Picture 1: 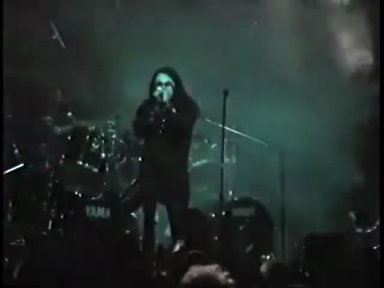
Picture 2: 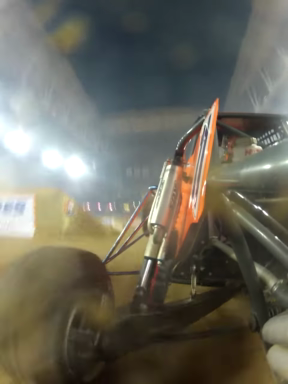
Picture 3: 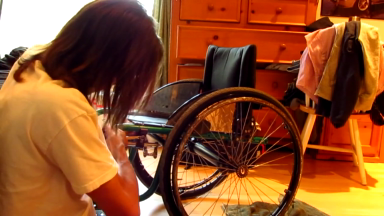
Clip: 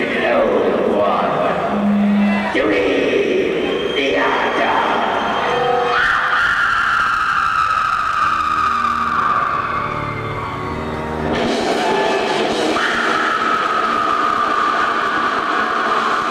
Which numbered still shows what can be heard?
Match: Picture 1